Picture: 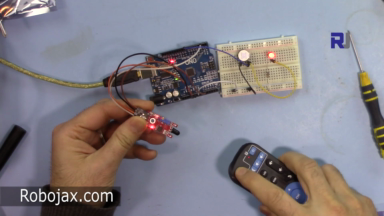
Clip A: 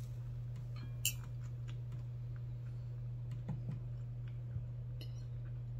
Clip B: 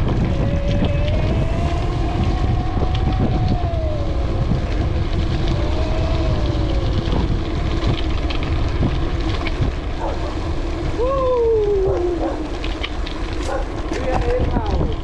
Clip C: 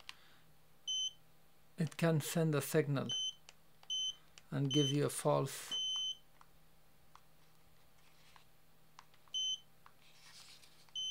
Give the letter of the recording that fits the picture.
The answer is C